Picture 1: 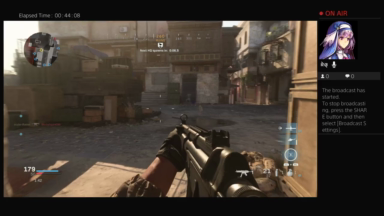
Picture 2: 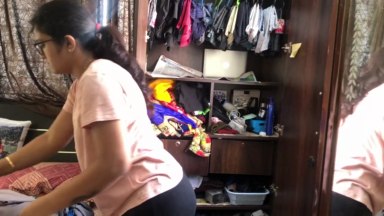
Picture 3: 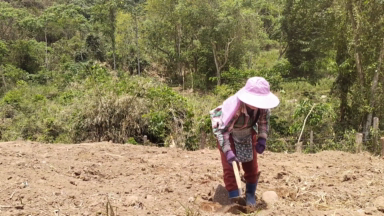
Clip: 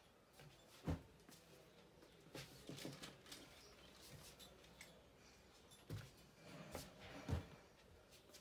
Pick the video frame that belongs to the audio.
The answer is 2